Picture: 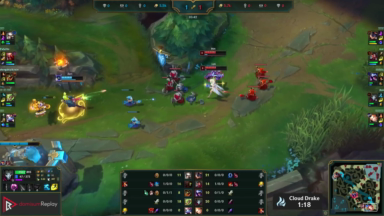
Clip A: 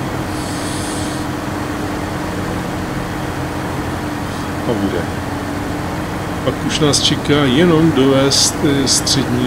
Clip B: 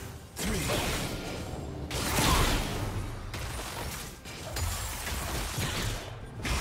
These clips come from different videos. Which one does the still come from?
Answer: B